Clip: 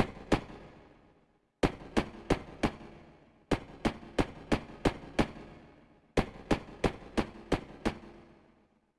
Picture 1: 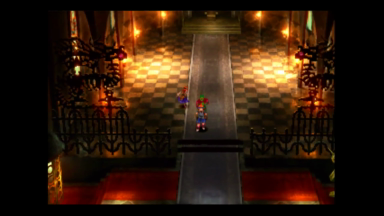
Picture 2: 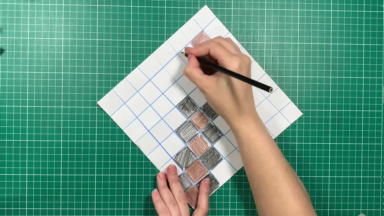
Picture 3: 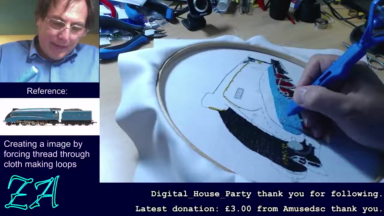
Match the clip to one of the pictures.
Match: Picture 1